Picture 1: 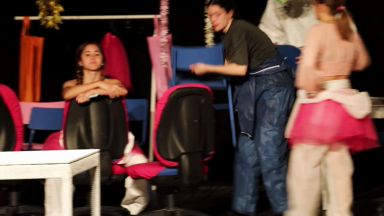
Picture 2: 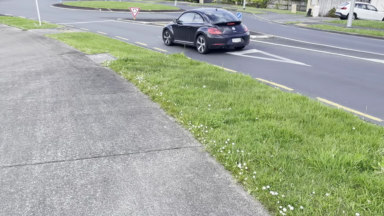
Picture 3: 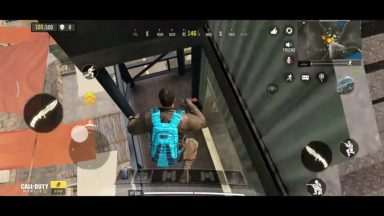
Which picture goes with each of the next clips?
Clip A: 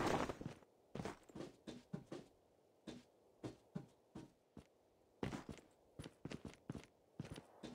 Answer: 3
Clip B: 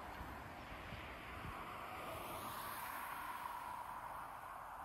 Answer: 2